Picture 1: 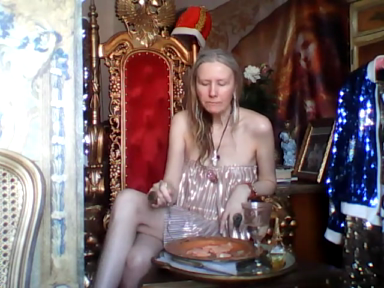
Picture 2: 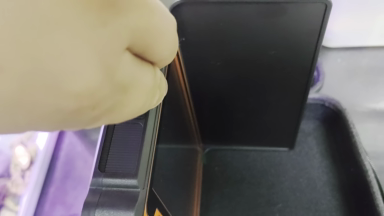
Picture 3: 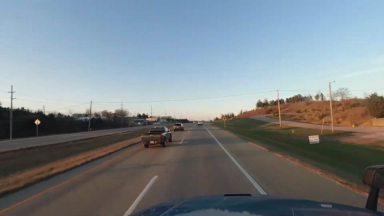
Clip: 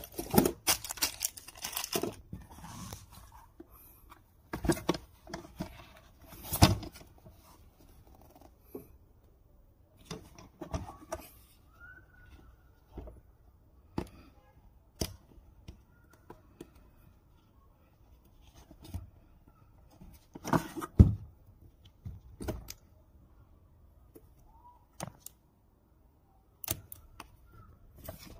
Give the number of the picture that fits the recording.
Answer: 2